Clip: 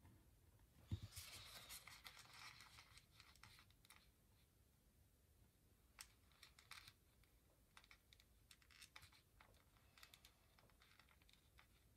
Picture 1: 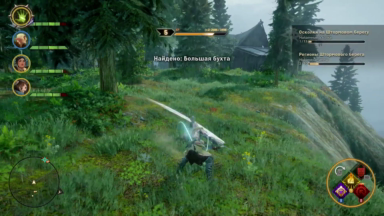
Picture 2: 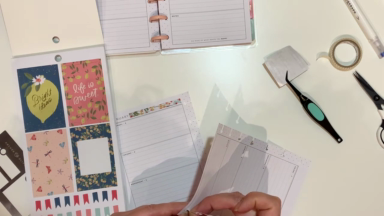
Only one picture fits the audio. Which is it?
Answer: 2